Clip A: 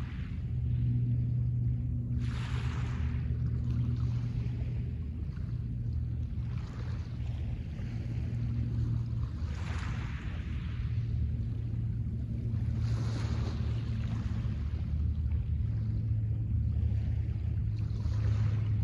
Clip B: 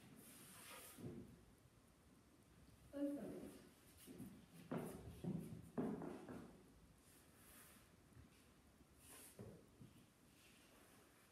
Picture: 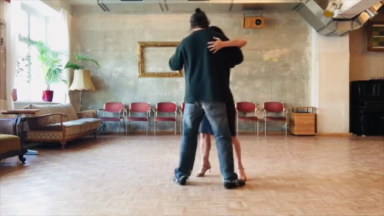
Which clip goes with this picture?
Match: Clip B